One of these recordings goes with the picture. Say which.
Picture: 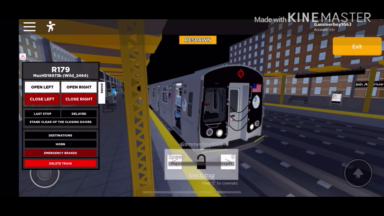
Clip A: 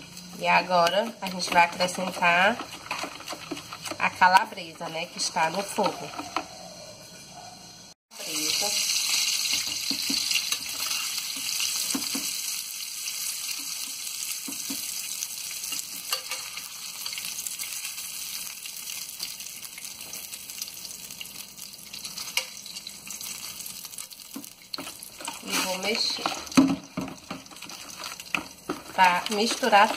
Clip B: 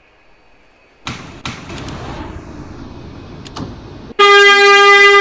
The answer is B